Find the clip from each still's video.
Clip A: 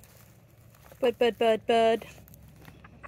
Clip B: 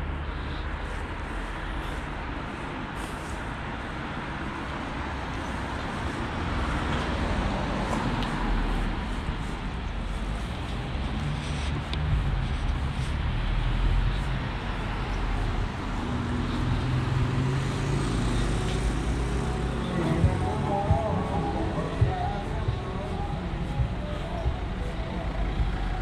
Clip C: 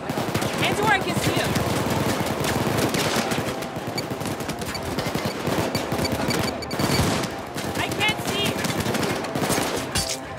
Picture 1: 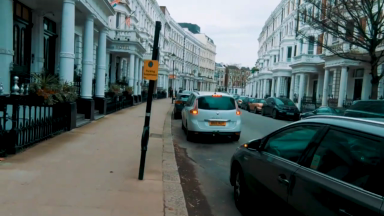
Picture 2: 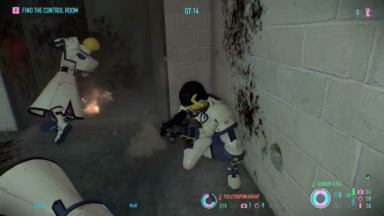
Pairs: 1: B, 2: C